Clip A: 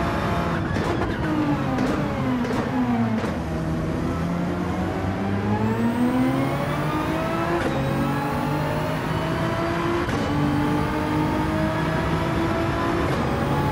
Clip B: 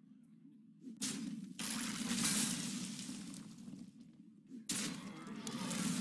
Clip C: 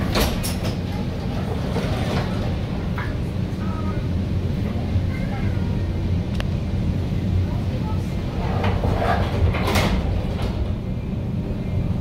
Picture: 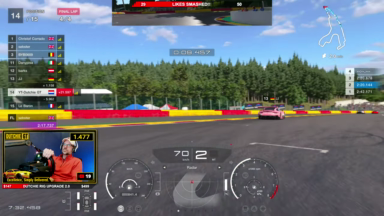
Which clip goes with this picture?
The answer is A